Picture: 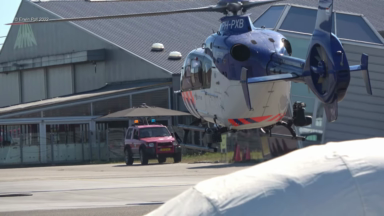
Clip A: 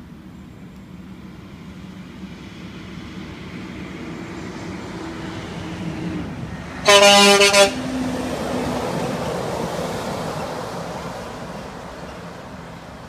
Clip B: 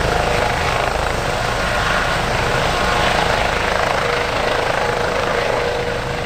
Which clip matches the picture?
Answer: B